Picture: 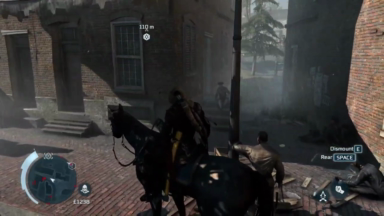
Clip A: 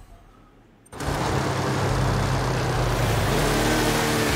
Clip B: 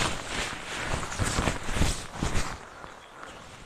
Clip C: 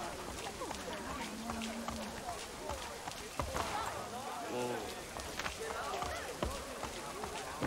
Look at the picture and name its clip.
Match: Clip C